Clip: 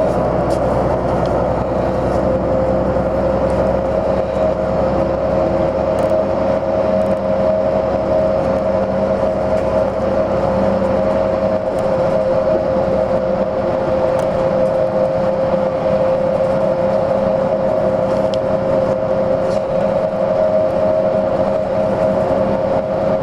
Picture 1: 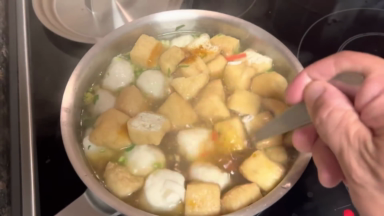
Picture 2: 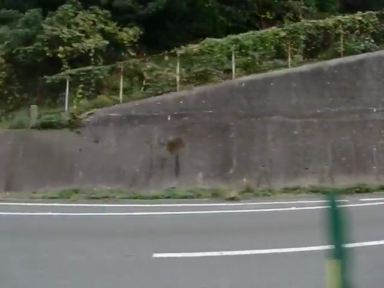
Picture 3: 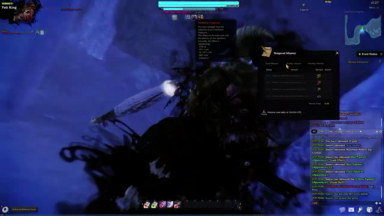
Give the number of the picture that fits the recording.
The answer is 2